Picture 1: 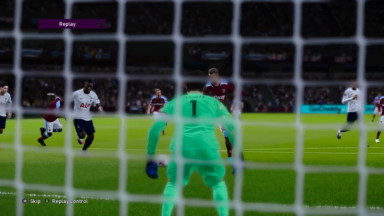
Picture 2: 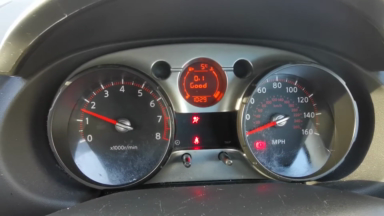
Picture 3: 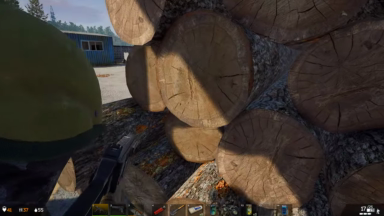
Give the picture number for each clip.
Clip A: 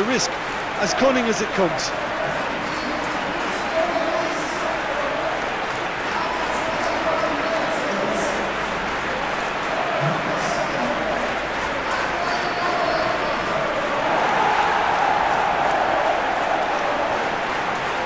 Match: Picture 1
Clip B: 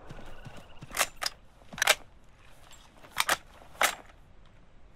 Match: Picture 3